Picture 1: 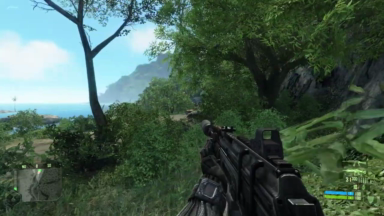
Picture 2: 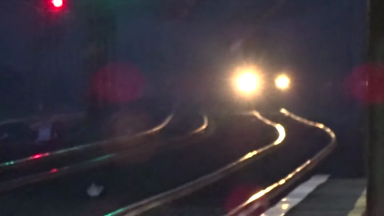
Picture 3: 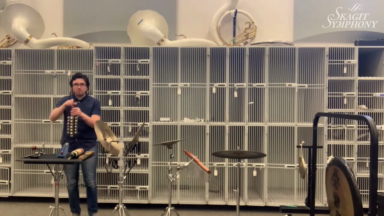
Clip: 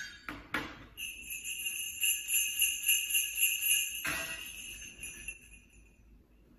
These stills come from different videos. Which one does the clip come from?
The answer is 3